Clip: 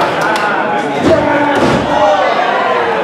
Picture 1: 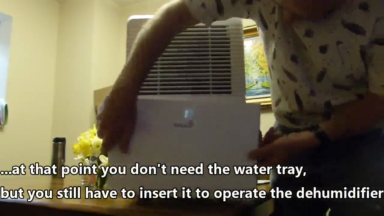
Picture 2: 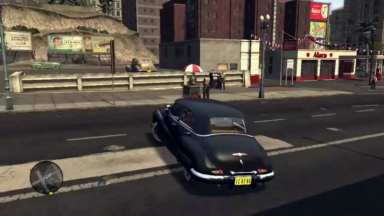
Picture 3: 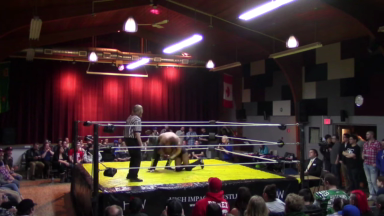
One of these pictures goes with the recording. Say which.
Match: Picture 3